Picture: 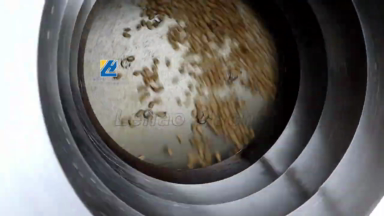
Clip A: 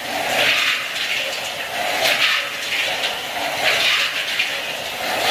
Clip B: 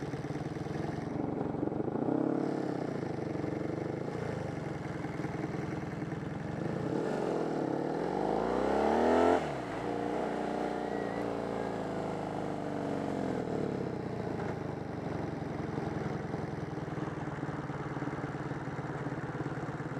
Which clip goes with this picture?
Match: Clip A